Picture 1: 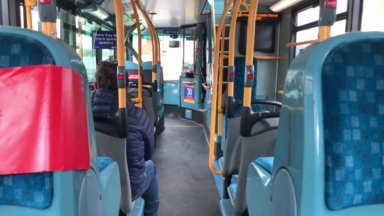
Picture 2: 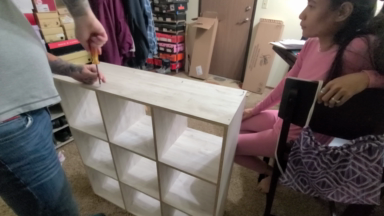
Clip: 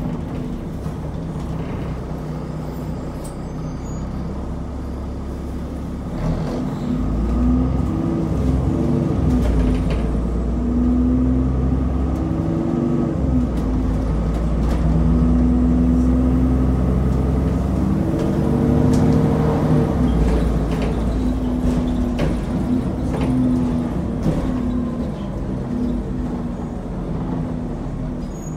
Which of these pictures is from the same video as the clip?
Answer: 1